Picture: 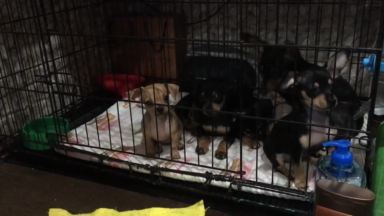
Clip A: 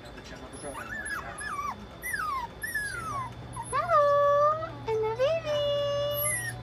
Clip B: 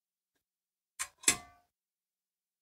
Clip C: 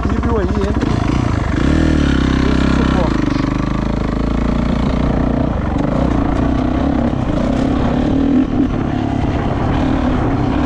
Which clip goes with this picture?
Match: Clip A